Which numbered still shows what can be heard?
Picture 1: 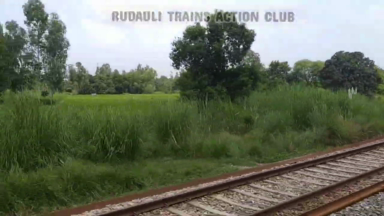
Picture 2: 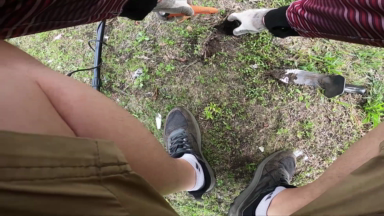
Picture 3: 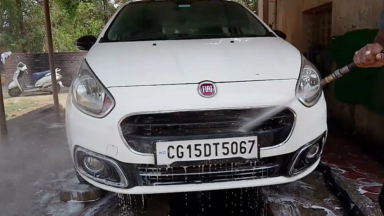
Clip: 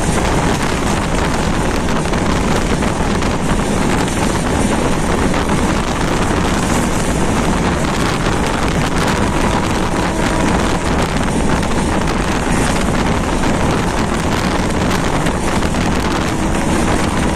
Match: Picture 1